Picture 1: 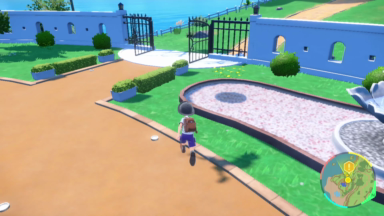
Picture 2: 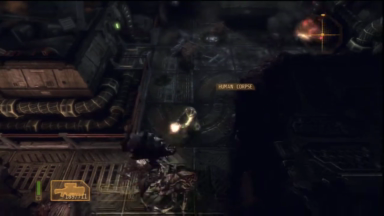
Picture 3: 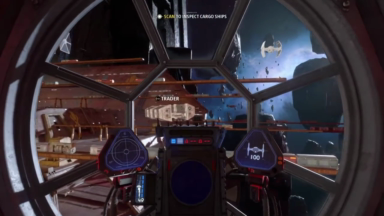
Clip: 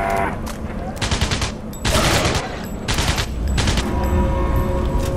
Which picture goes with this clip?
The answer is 2